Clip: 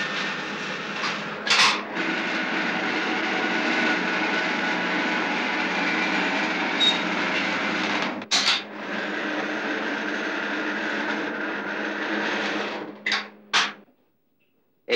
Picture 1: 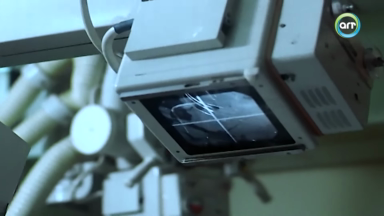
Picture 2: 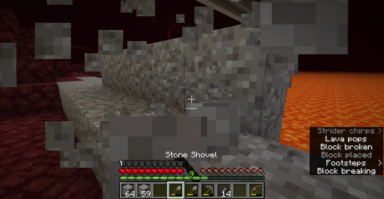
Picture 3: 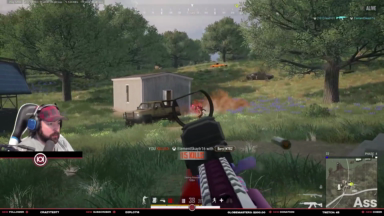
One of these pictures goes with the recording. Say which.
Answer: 1